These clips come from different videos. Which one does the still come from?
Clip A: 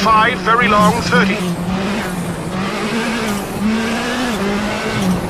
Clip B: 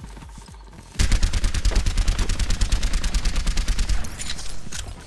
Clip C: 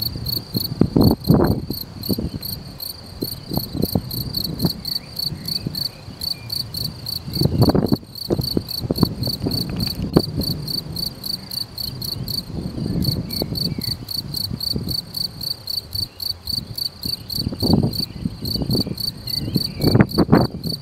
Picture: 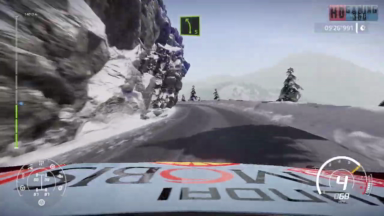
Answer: A